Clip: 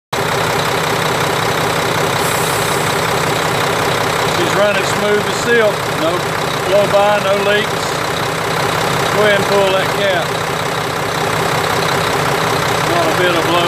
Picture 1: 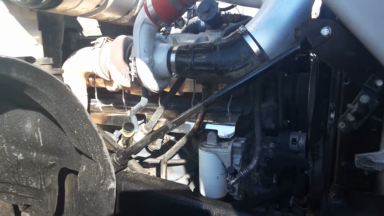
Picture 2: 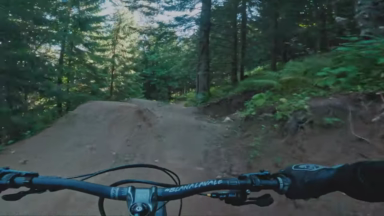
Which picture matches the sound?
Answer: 1